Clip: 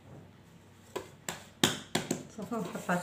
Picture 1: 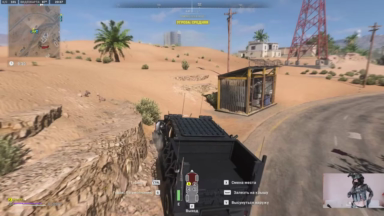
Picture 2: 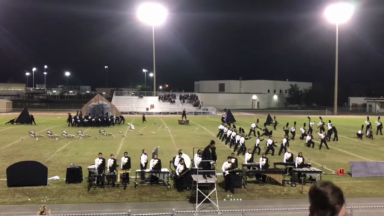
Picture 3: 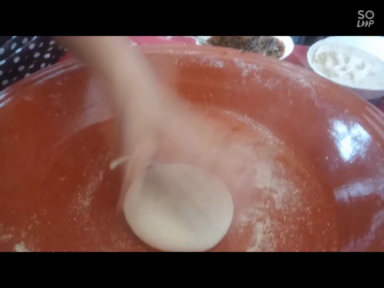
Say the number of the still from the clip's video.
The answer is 3